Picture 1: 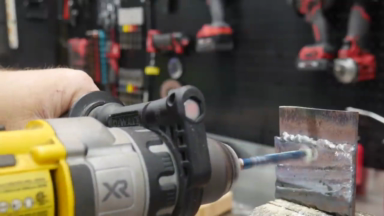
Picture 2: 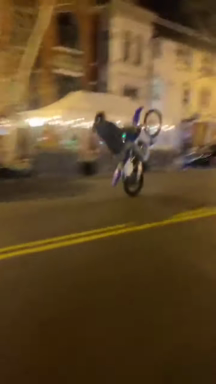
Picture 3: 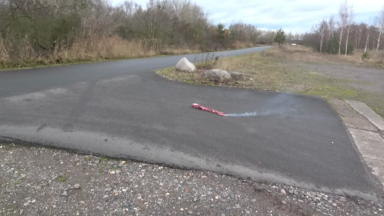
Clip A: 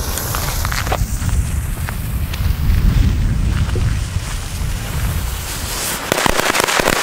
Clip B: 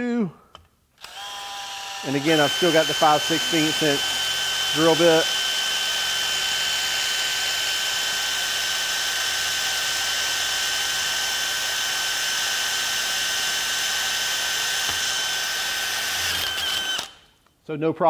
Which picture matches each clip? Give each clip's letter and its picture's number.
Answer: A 3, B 1